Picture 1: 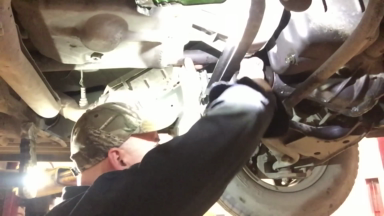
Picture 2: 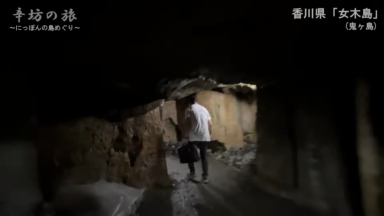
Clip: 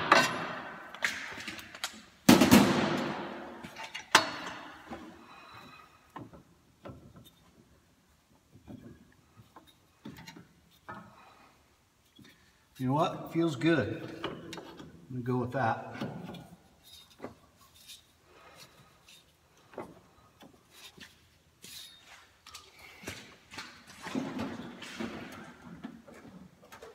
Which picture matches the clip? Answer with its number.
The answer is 1